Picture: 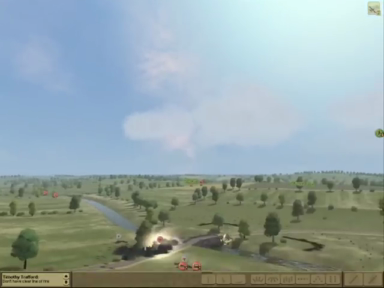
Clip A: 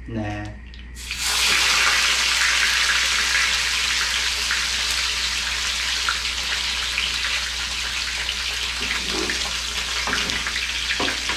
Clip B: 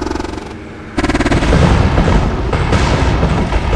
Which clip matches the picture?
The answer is B